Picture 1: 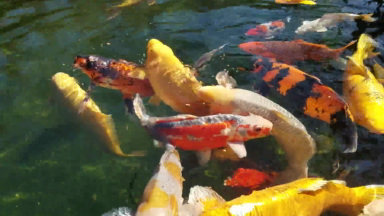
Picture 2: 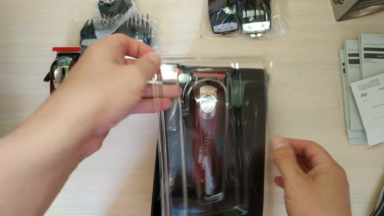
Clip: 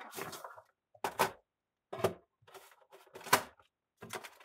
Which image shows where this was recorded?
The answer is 2